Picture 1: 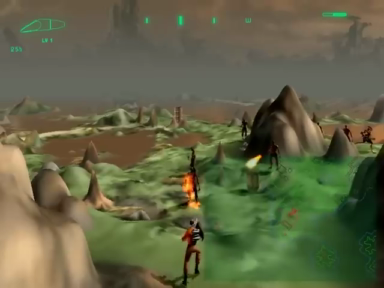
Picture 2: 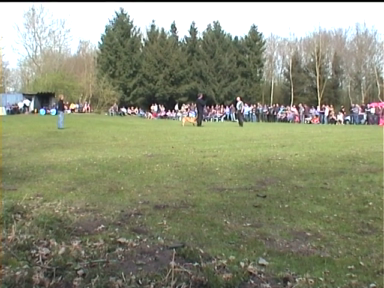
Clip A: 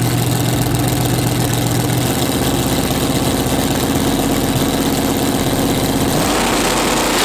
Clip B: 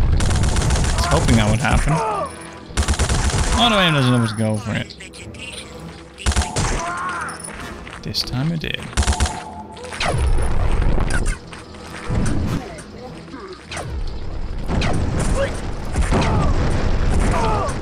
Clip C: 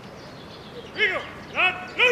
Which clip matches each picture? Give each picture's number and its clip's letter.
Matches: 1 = B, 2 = C